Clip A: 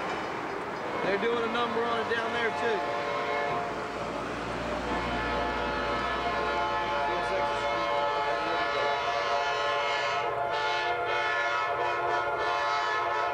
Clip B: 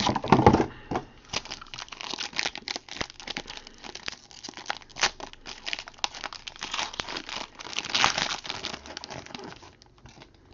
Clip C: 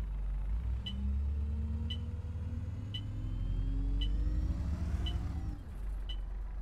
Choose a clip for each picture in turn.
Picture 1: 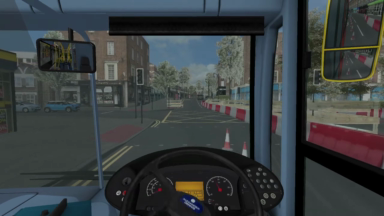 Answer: C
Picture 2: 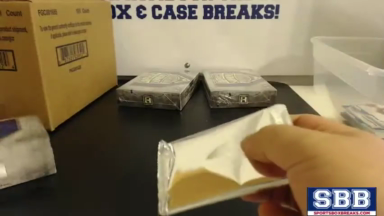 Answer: B